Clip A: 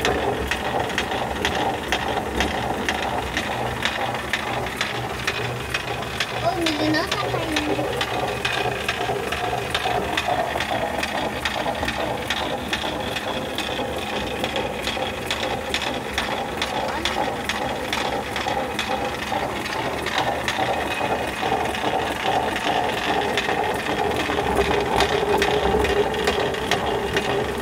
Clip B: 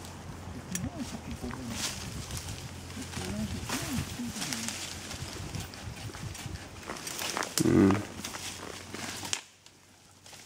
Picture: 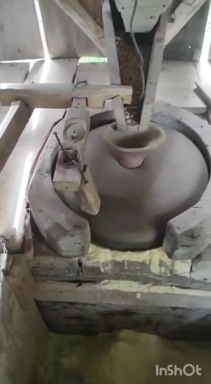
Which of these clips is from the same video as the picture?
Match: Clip A